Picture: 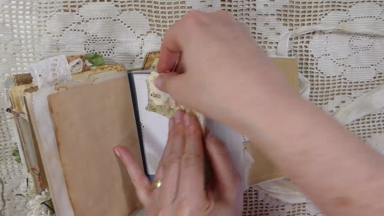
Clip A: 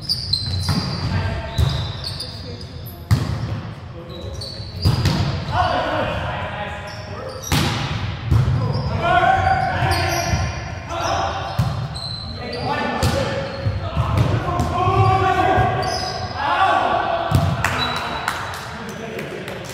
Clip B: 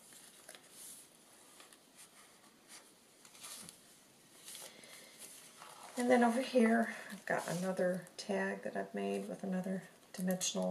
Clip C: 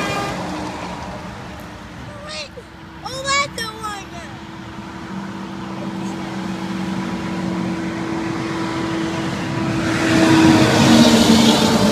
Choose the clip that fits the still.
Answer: B